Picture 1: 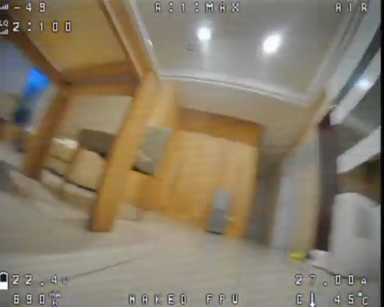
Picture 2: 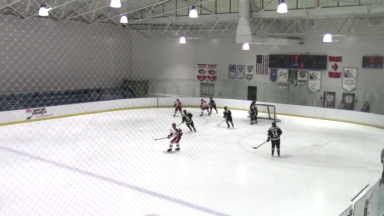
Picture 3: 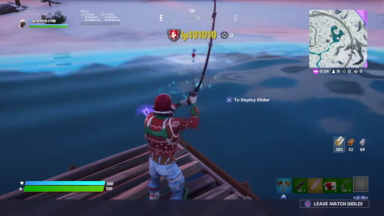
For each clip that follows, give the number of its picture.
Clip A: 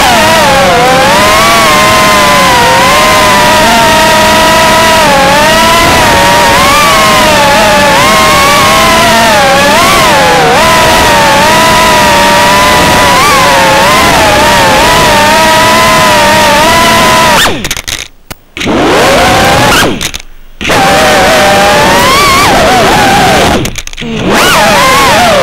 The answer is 1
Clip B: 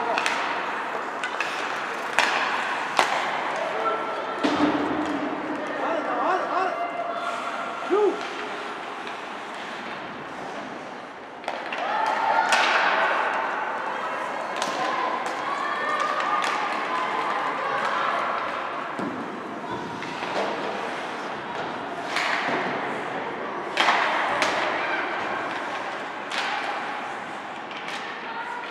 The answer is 2